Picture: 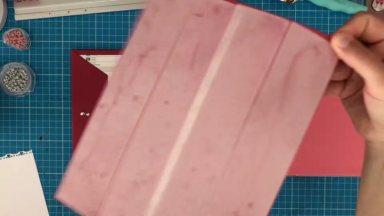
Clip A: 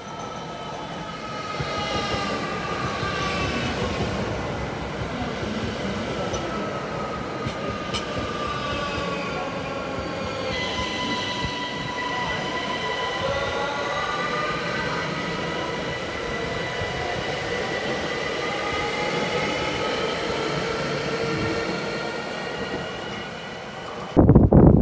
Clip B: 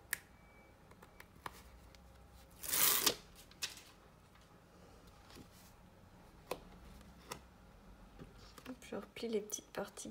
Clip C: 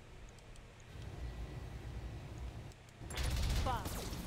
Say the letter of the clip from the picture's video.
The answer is B